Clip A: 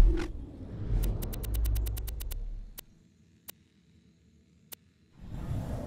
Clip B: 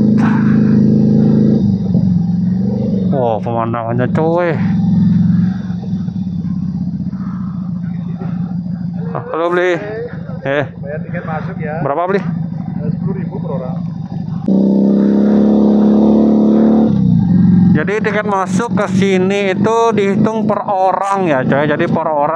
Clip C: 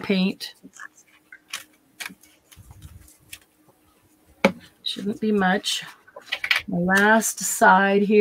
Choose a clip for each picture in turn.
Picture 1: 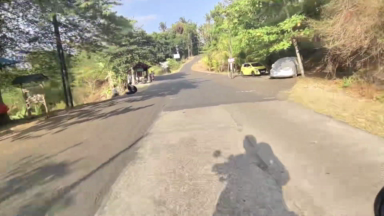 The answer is B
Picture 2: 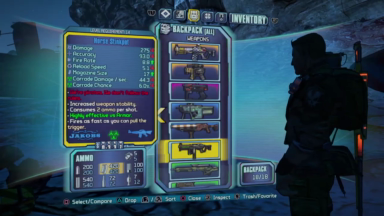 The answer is A